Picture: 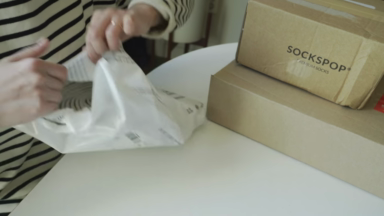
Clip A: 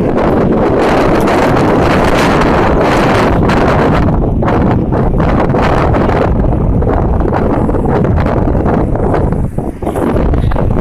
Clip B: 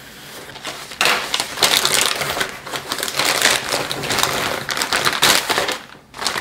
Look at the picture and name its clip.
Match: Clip B